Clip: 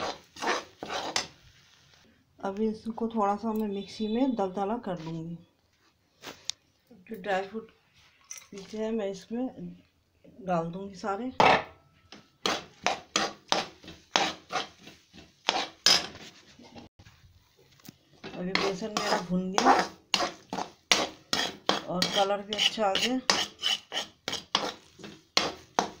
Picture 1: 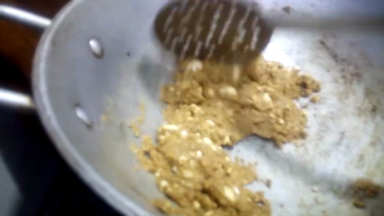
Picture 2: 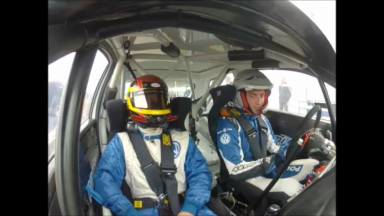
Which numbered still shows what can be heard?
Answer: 1